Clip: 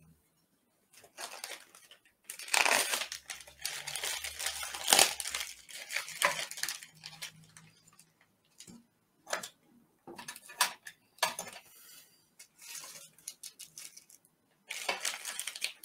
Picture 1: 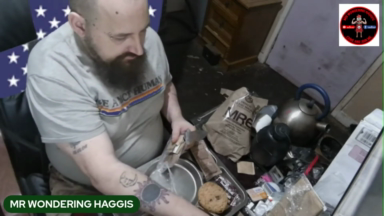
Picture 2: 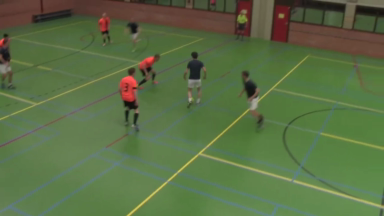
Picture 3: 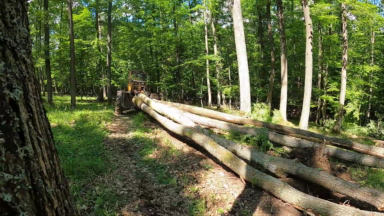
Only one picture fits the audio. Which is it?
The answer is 1